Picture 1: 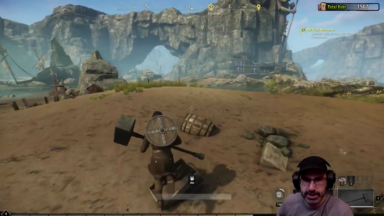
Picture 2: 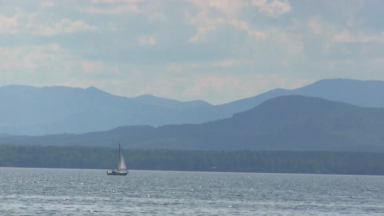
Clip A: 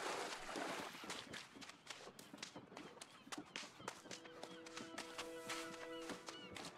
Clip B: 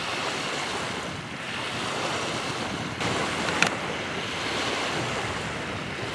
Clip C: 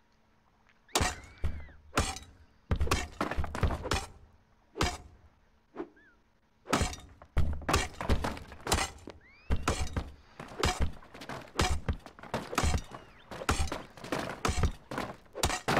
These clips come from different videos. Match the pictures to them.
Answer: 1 A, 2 B